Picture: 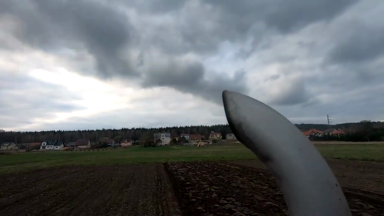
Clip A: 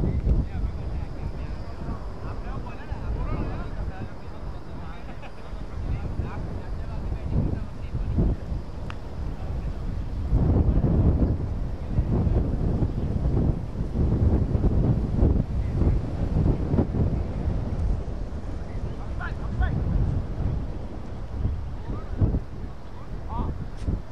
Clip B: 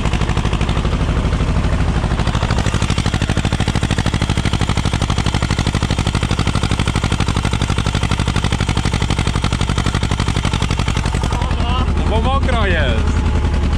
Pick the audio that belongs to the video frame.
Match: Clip B